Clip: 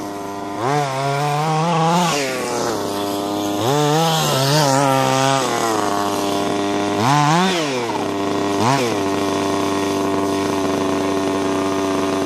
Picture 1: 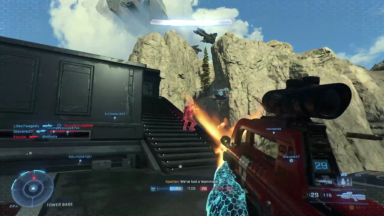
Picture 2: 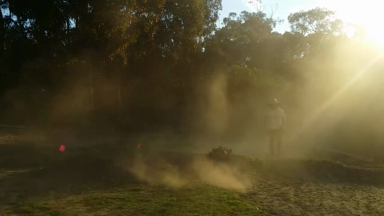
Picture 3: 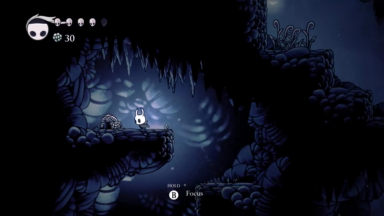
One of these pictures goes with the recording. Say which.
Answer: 2